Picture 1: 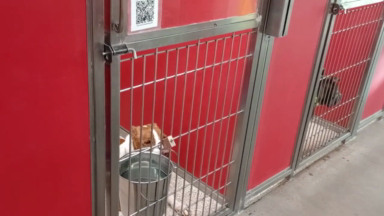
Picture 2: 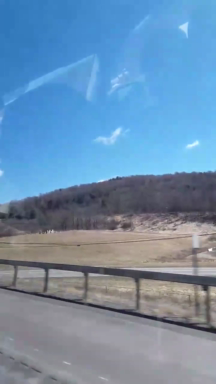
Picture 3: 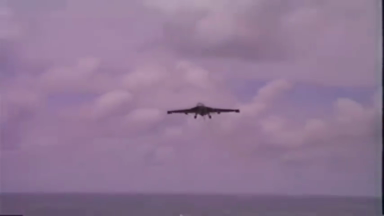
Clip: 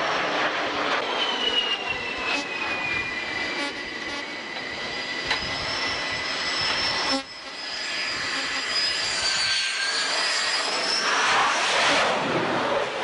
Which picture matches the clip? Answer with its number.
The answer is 3